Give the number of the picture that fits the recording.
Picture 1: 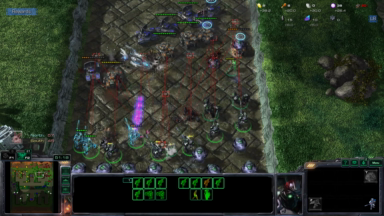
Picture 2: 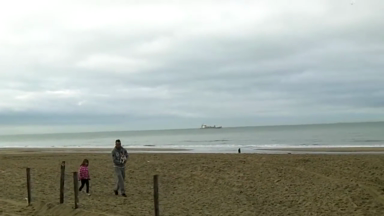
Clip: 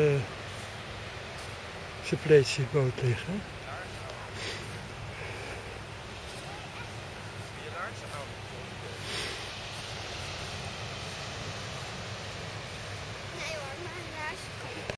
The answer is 2